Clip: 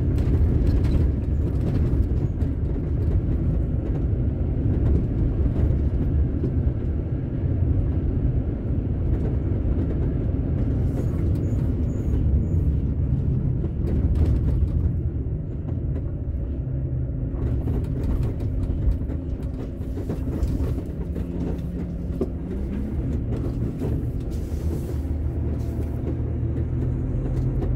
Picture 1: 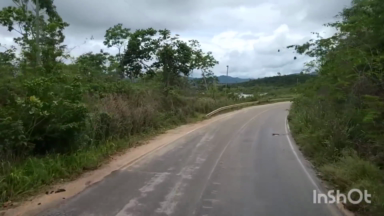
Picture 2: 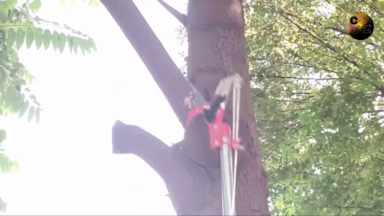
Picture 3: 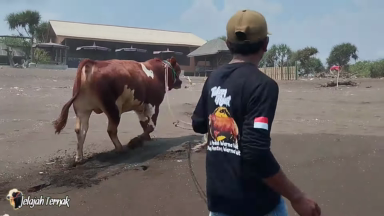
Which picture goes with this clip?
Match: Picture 1